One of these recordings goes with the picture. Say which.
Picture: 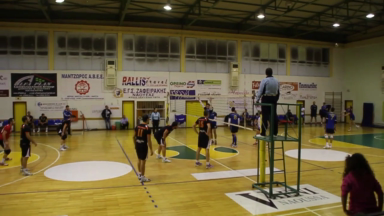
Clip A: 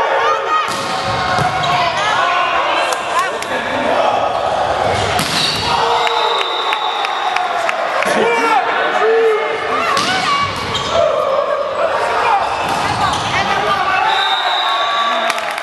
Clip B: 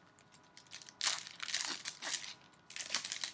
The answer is A